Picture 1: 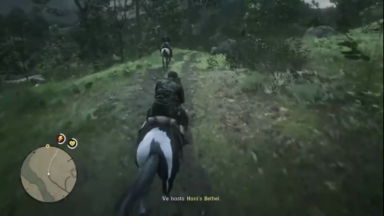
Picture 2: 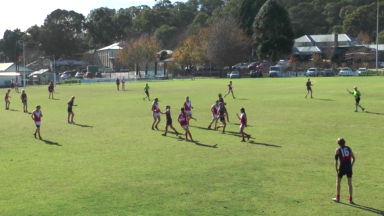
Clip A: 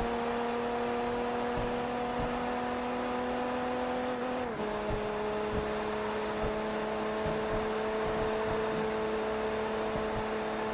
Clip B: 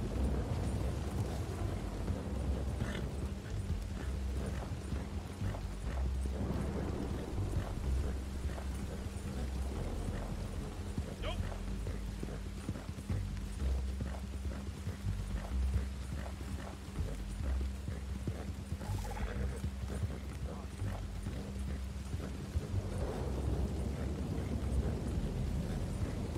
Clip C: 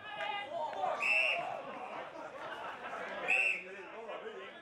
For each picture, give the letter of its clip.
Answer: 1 B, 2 C